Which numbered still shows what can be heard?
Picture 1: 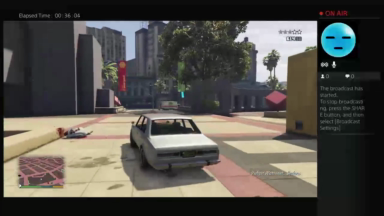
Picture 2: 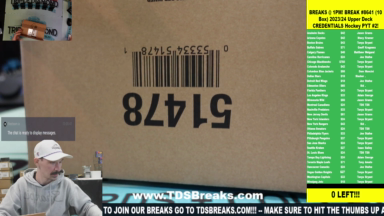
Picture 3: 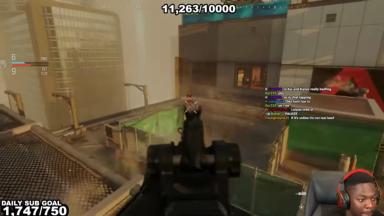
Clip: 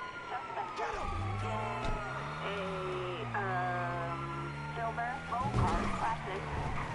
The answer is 1